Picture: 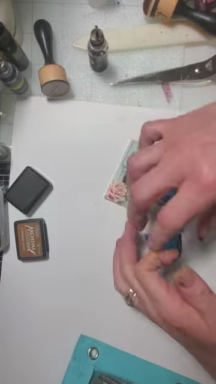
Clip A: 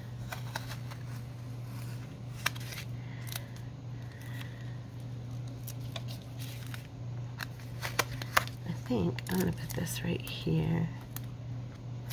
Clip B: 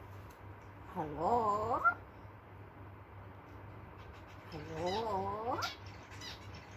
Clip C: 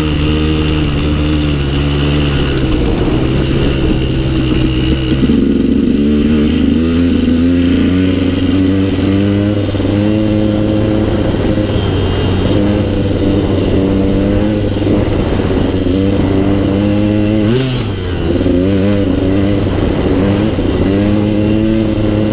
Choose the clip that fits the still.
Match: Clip A